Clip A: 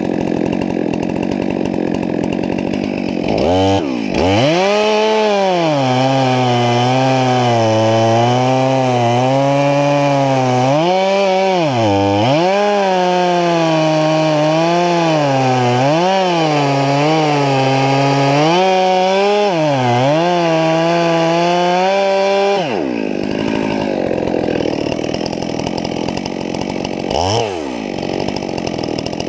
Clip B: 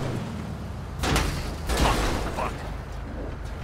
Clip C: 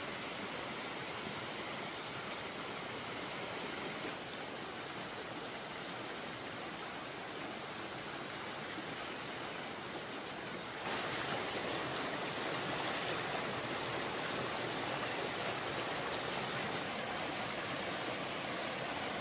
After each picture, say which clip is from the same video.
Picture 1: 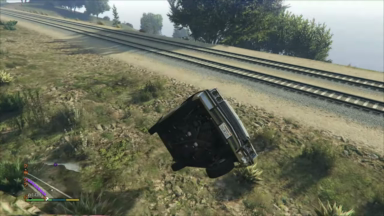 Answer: B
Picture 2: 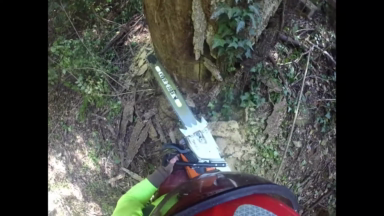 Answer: A